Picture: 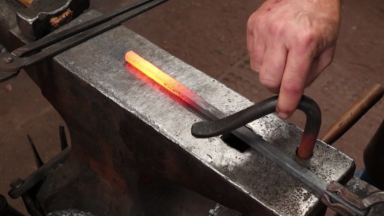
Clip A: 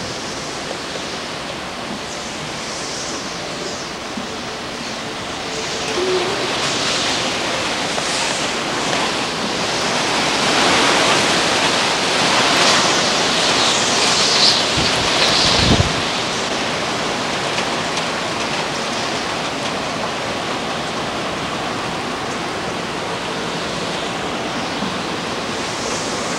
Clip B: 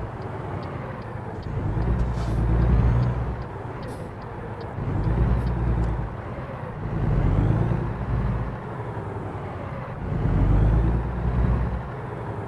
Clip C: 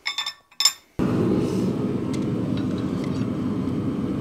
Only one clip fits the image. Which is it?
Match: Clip C